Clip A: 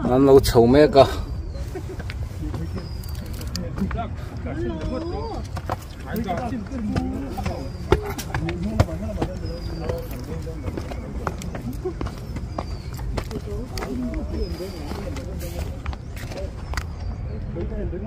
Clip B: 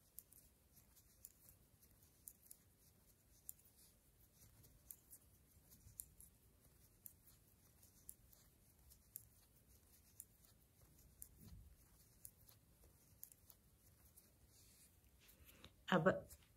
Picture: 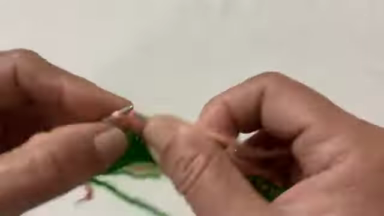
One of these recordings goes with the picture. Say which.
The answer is B